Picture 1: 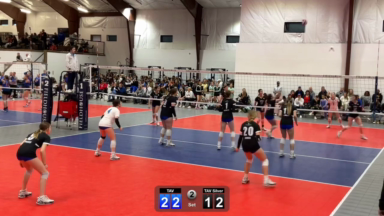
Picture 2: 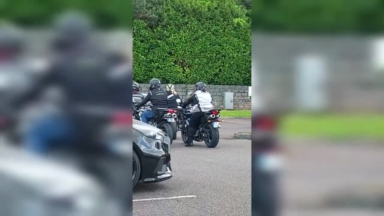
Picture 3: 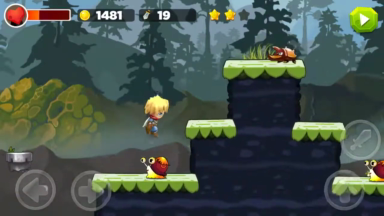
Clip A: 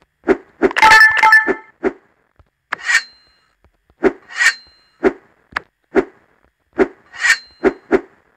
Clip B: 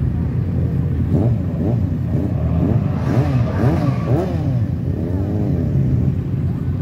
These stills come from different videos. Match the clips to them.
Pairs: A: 3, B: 2